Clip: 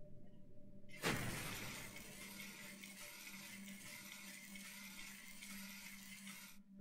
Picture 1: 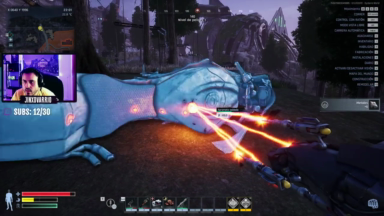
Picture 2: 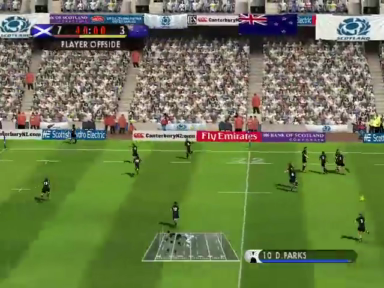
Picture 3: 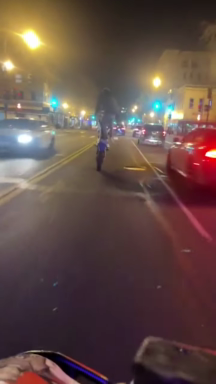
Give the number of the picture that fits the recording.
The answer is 1